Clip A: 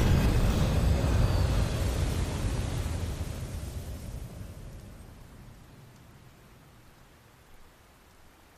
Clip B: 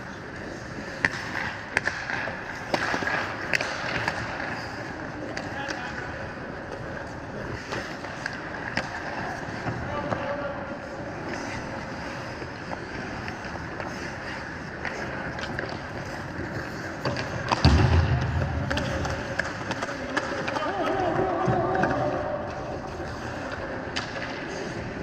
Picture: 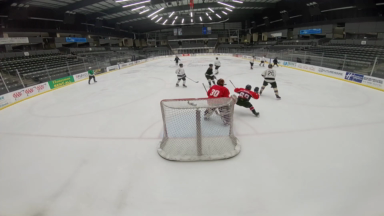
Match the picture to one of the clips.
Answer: B